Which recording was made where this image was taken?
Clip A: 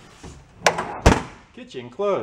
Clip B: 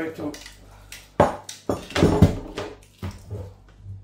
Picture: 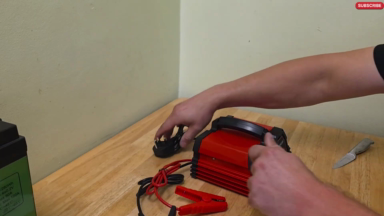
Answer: B